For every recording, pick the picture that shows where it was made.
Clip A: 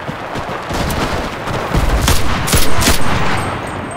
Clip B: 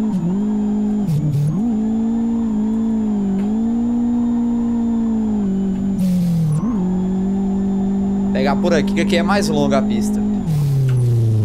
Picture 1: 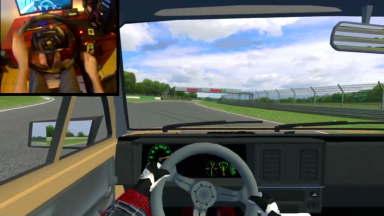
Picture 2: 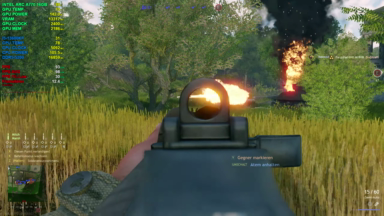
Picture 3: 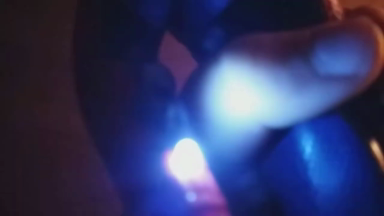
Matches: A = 2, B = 1